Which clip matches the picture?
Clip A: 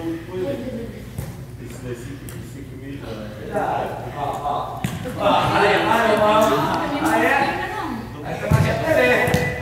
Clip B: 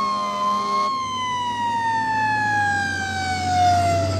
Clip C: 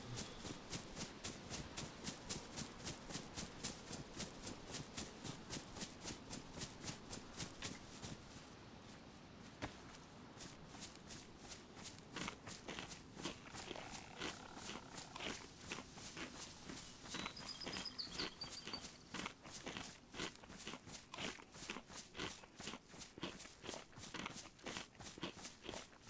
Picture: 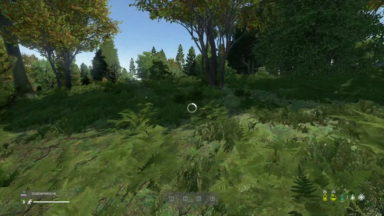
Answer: C